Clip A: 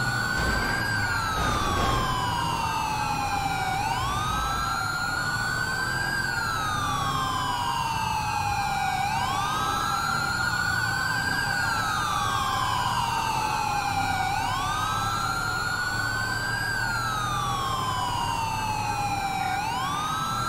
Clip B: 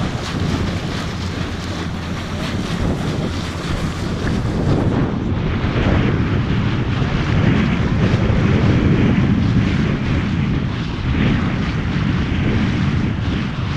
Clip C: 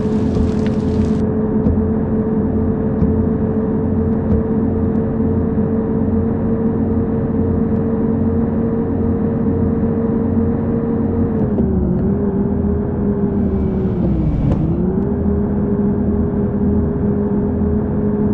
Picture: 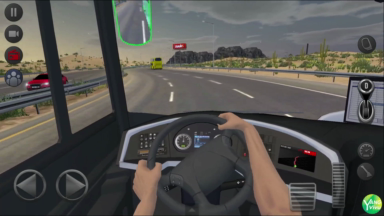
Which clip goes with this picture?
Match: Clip C